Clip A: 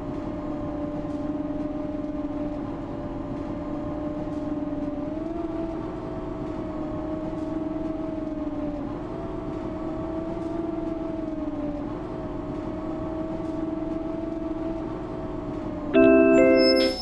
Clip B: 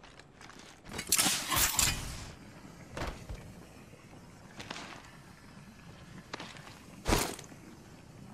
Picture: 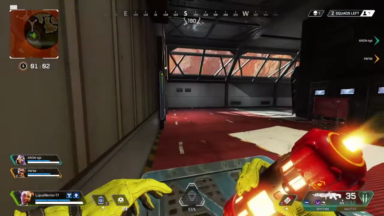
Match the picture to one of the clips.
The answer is B